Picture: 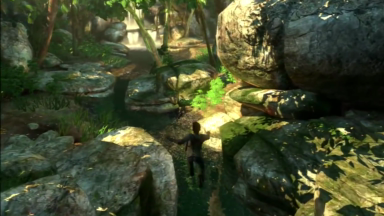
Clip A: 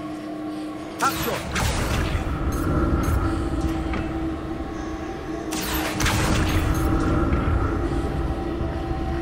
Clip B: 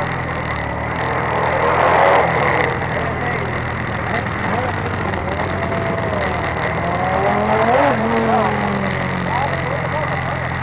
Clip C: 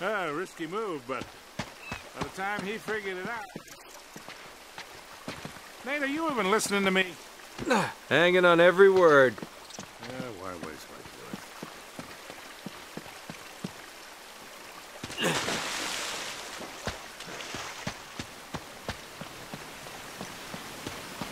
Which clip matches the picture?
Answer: C